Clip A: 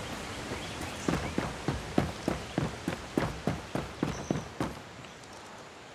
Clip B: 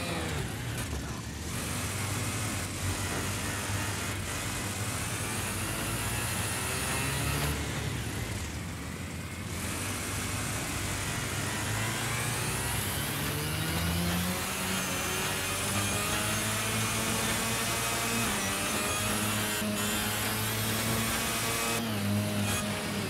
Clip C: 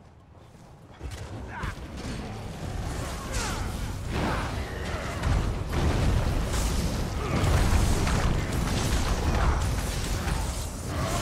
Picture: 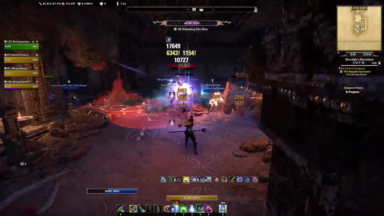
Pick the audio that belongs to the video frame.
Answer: C